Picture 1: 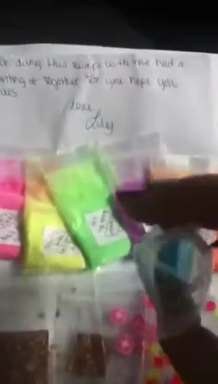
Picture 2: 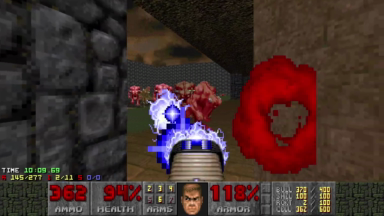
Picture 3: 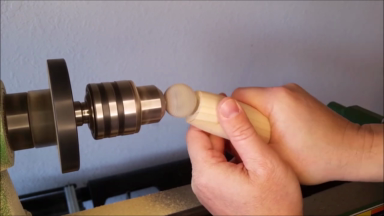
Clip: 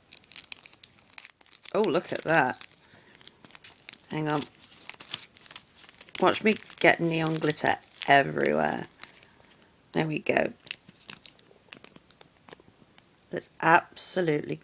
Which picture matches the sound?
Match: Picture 1